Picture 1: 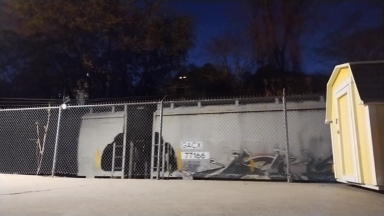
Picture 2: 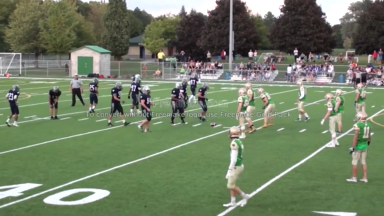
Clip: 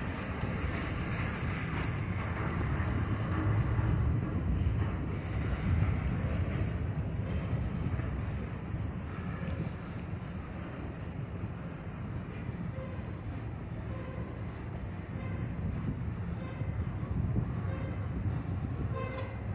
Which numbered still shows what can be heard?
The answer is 1